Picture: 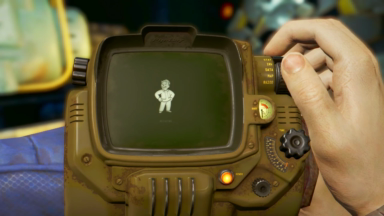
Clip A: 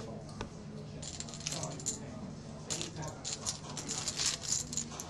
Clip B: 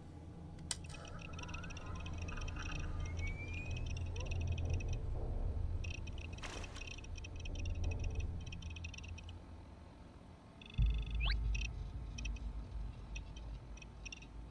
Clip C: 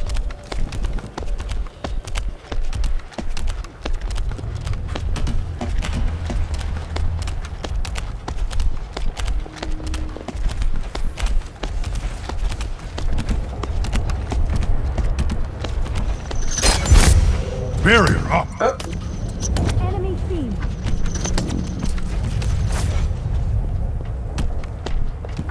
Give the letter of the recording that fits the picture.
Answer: B